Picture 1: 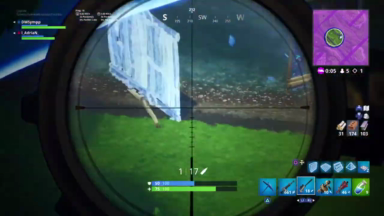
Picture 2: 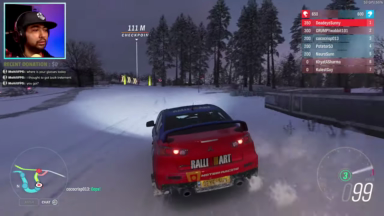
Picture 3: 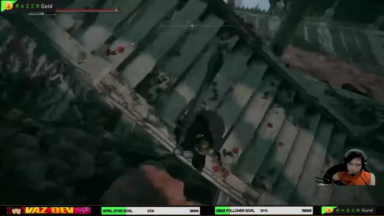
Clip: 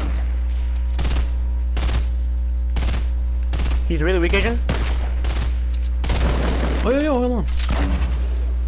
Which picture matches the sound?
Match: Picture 1